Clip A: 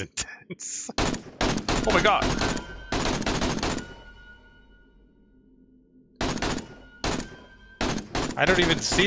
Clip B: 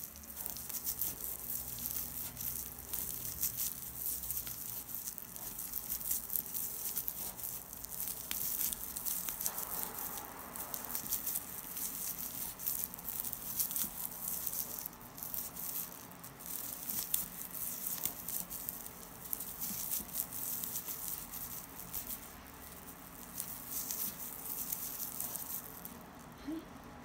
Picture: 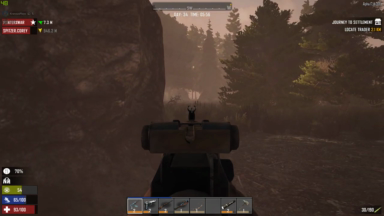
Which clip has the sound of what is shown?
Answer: A